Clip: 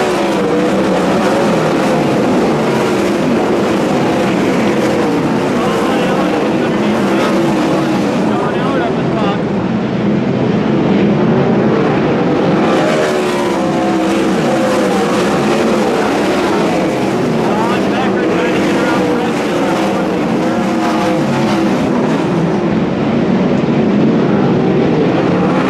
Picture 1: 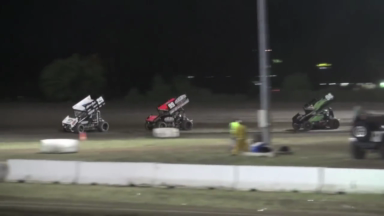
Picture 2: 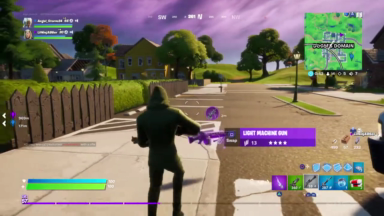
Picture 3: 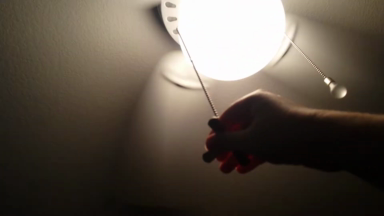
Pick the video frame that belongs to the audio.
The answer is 1